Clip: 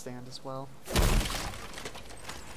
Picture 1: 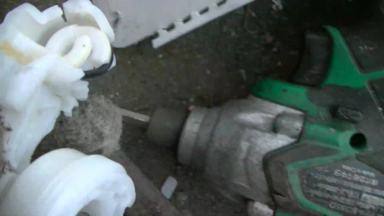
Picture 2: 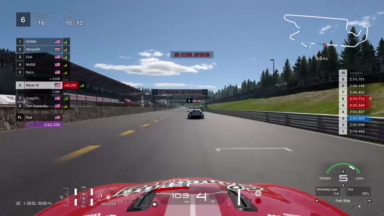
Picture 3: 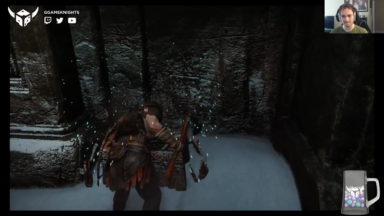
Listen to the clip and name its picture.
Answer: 3